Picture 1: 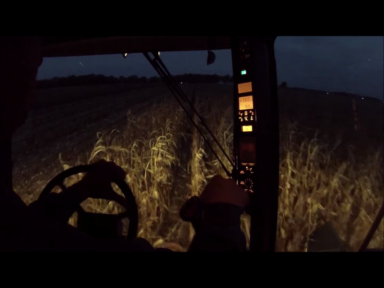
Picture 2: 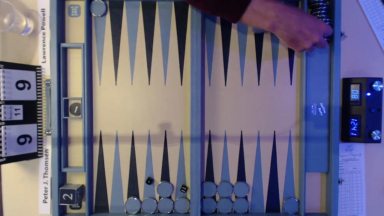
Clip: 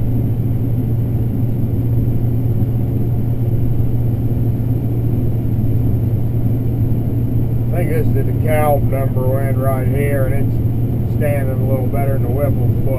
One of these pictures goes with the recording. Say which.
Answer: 1